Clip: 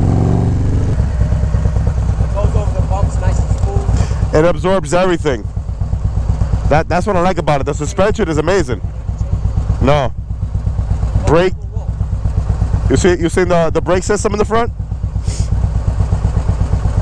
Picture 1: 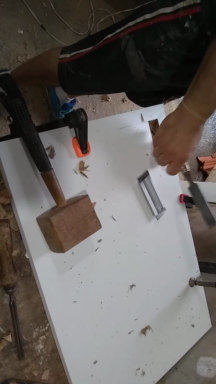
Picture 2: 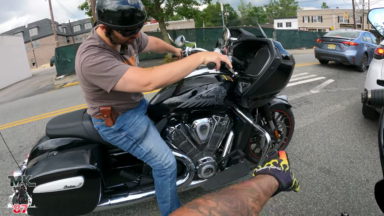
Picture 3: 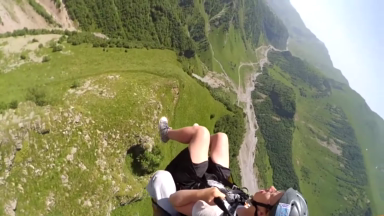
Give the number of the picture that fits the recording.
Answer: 2